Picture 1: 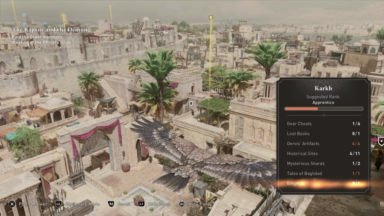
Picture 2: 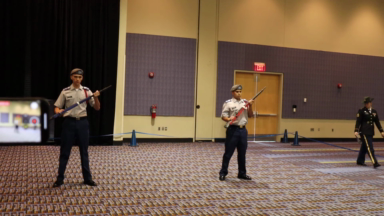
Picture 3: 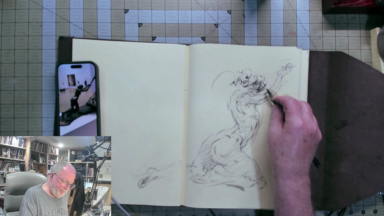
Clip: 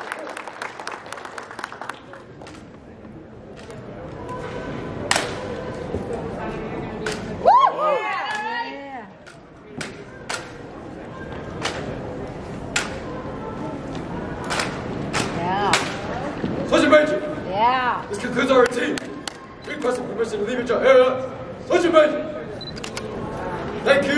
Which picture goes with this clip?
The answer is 2